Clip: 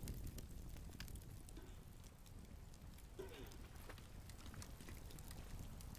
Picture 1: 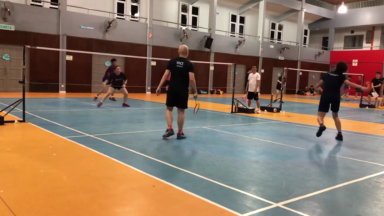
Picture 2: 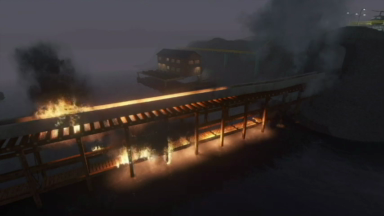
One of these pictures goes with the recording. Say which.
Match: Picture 2